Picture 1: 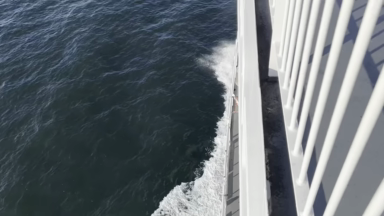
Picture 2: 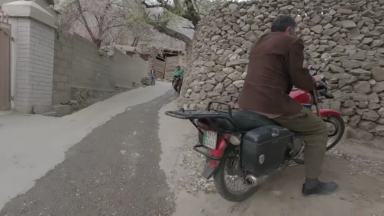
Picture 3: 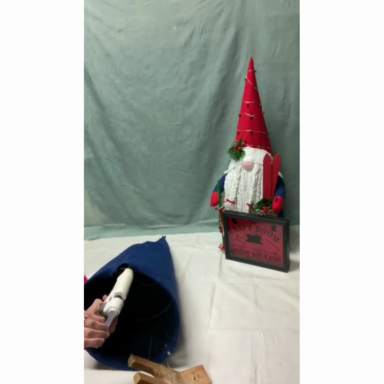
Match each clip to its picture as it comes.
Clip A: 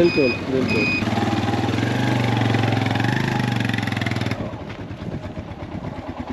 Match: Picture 2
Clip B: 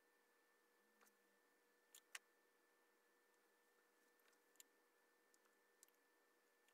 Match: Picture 3